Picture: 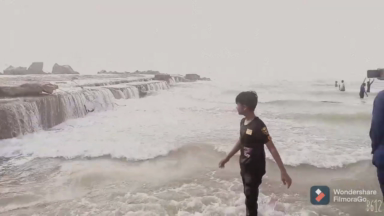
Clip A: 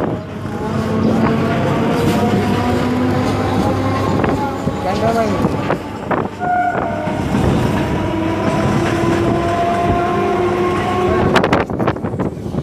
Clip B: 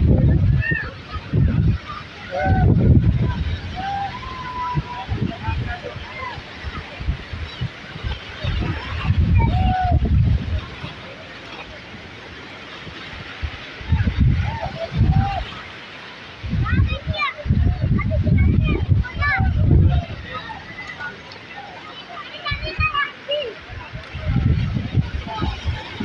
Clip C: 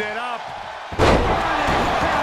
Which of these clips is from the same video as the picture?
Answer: B